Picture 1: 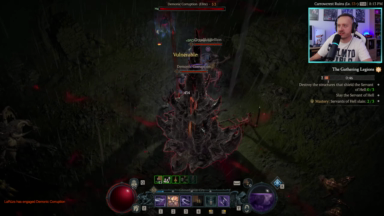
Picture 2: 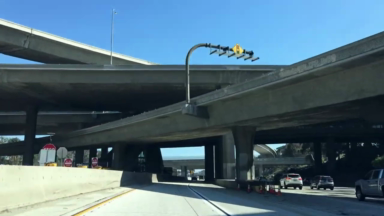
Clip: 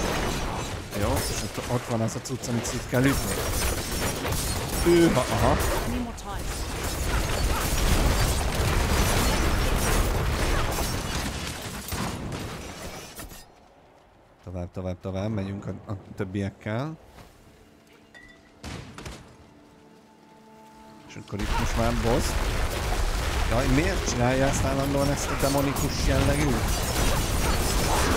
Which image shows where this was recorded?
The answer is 1